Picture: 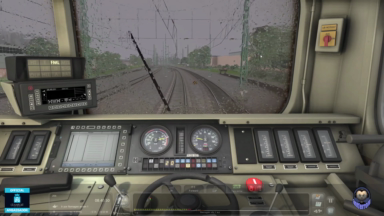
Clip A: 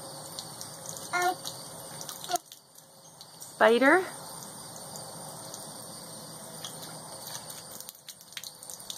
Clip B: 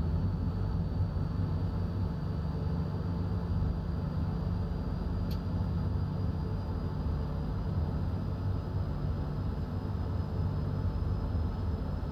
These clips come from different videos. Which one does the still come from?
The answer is B